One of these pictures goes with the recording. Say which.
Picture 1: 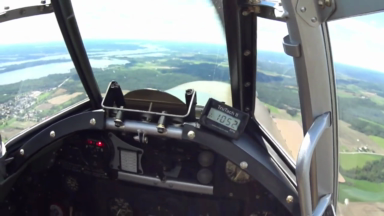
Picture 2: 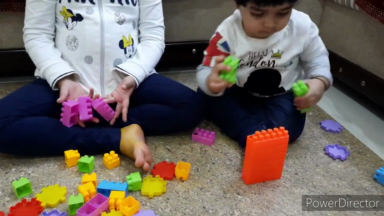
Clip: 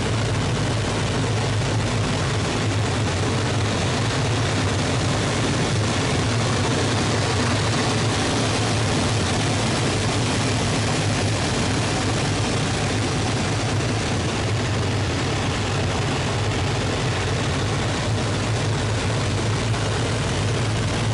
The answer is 1